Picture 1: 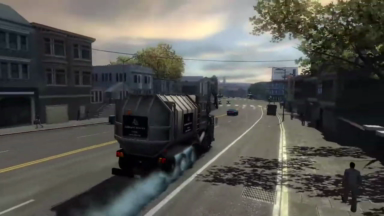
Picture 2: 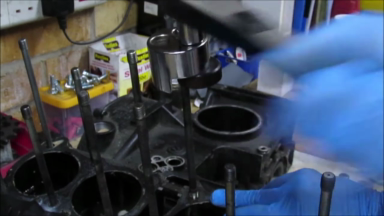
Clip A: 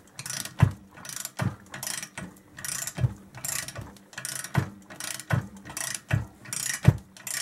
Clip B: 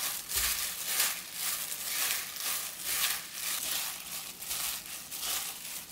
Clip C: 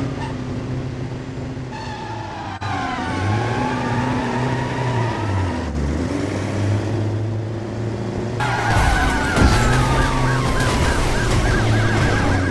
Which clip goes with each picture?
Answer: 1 C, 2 A